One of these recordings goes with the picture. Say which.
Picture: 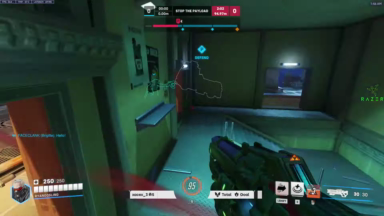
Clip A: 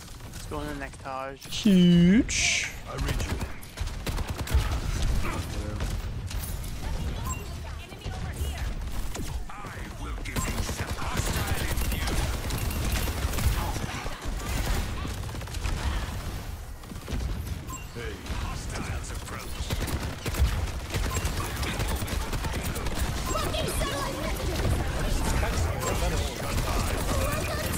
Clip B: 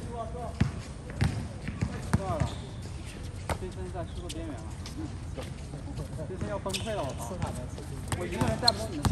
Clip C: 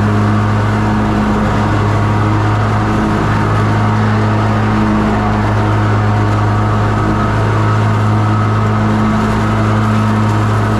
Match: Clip A